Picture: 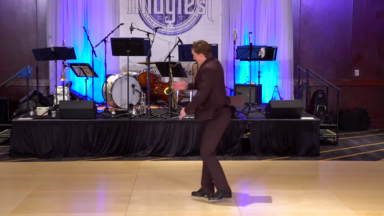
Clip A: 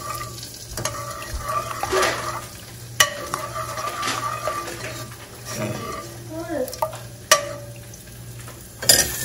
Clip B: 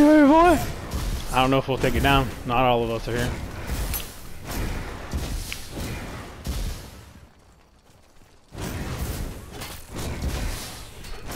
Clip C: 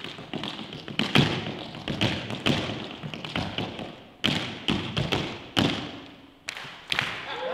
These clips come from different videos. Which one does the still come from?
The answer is C